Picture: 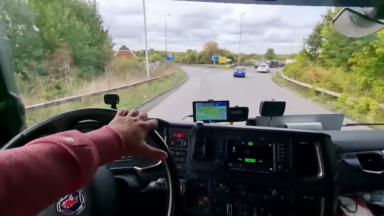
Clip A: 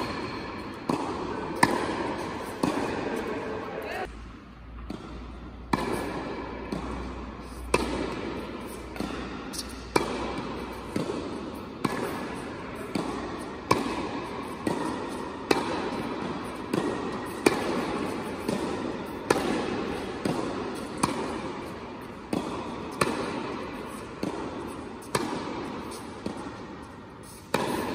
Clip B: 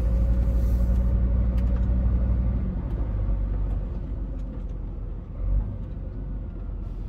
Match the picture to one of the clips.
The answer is B